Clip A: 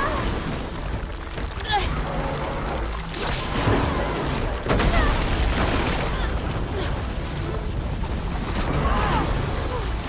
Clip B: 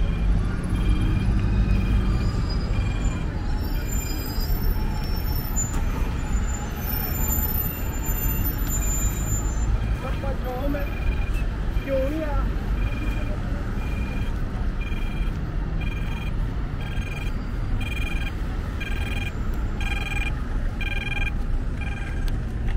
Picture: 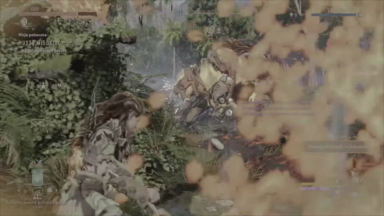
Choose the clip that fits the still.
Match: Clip A